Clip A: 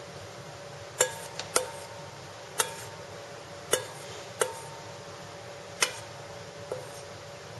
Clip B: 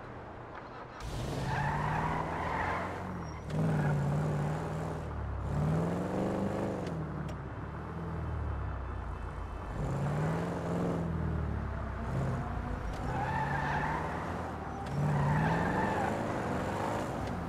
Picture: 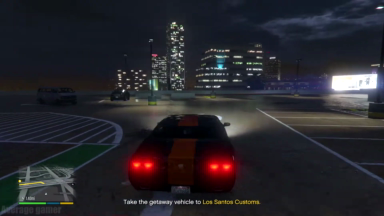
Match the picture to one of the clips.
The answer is B